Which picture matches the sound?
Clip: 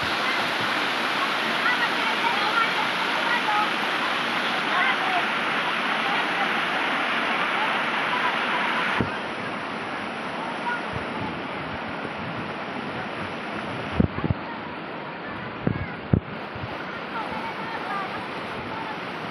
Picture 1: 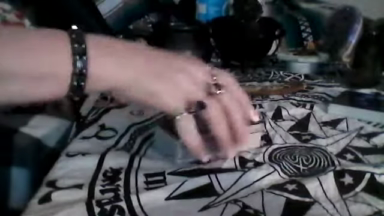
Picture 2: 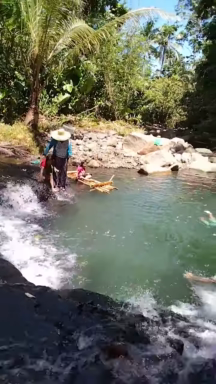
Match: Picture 2